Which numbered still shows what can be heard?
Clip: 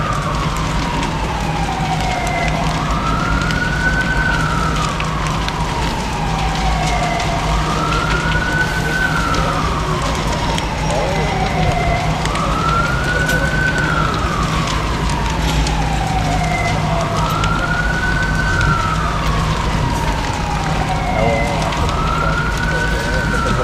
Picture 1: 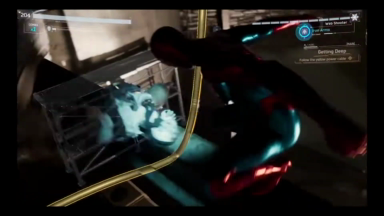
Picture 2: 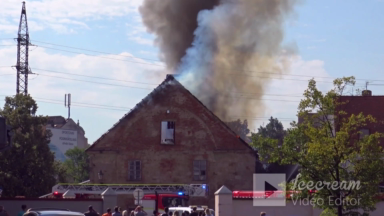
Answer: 2